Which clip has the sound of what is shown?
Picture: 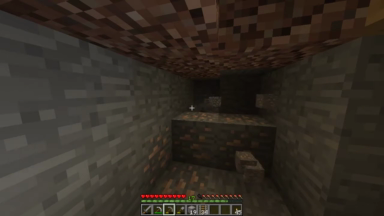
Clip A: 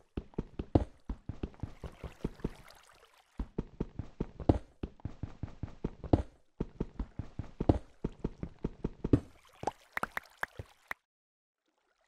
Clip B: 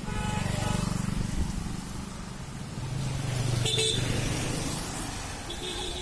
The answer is A